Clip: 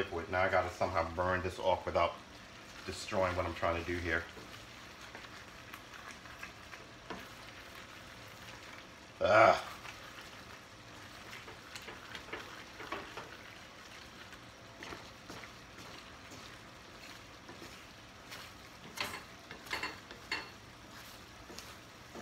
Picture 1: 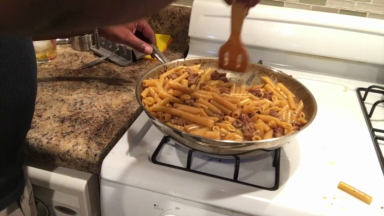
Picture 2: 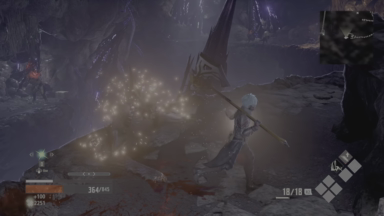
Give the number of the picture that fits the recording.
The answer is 1